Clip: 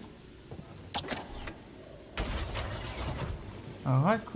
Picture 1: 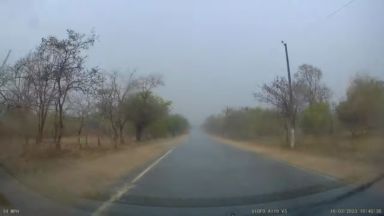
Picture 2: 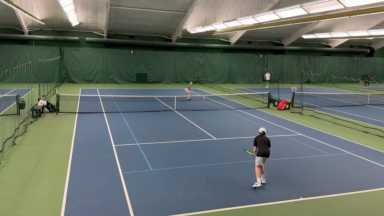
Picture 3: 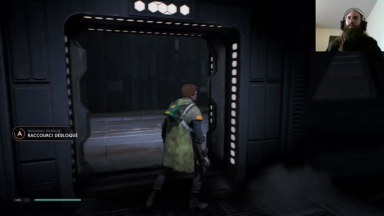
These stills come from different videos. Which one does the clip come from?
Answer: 3